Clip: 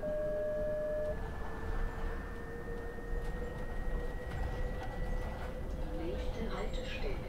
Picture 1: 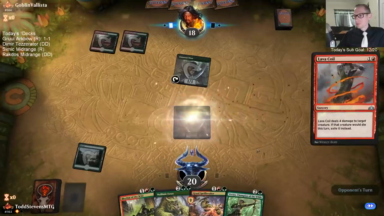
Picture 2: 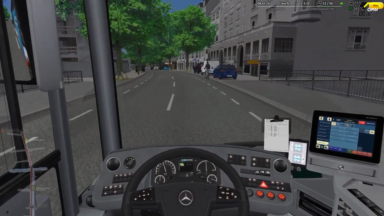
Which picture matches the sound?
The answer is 2